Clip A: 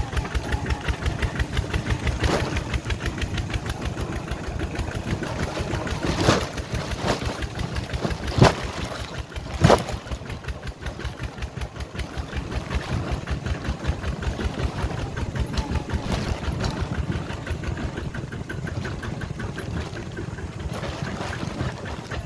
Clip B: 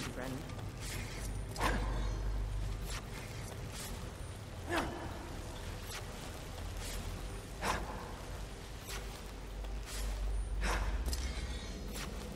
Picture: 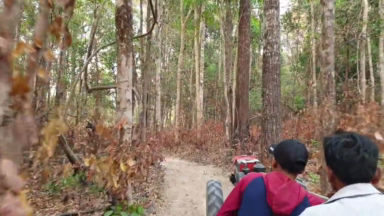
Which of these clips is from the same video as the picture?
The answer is A